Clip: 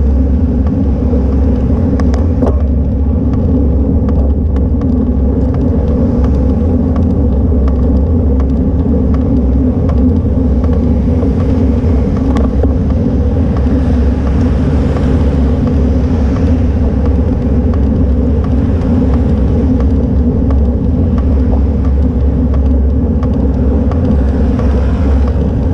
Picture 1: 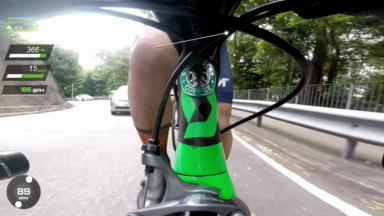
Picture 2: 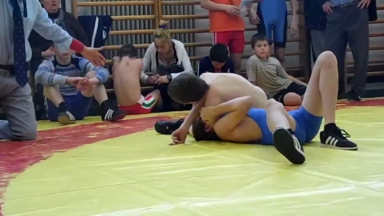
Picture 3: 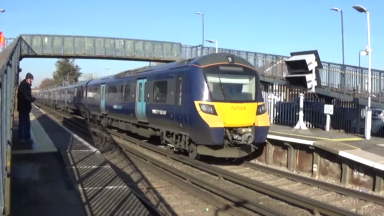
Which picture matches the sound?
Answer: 1